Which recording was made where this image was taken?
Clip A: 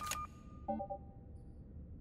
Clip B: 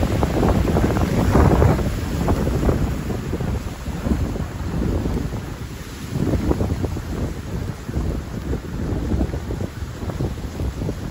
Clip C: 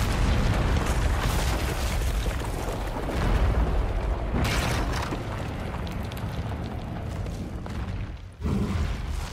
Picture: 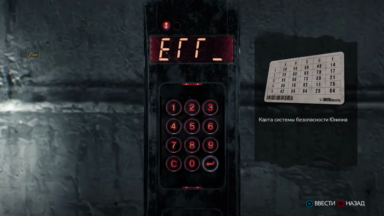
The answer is A